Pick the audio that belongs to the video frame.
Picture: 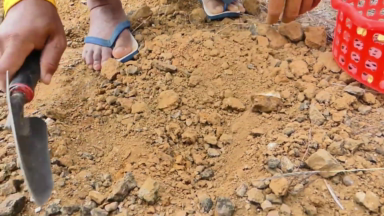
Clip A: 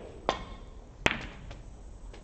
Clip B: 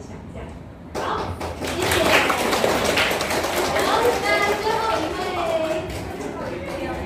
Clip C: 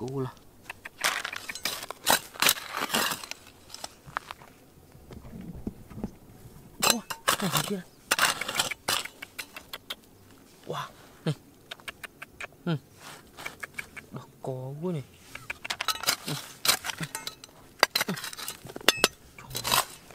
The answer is C